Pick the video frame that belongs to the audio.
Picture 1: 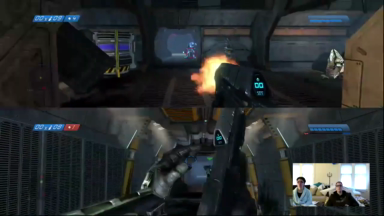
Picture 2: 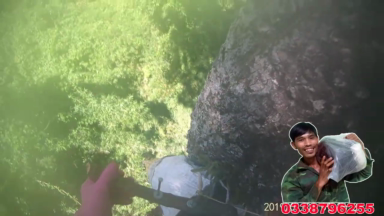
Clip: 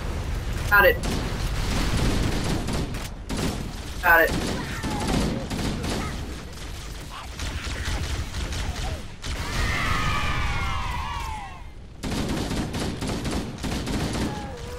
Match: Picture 1